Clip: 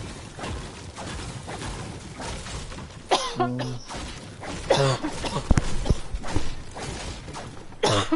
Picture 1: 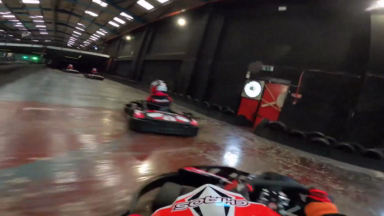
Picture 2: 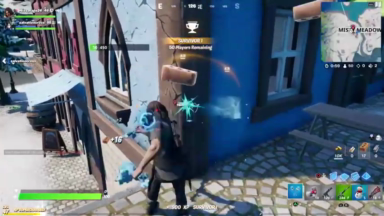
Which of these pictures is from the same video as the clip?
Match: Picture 2